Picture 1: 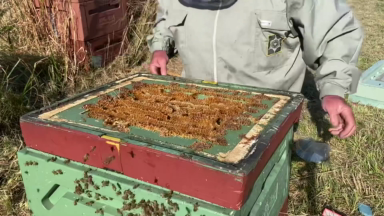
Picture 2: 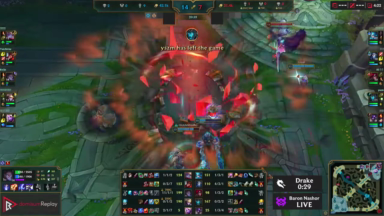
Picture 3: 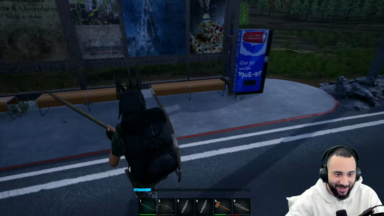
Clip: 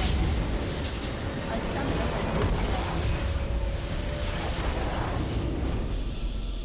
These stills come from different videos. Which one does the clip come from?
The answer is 2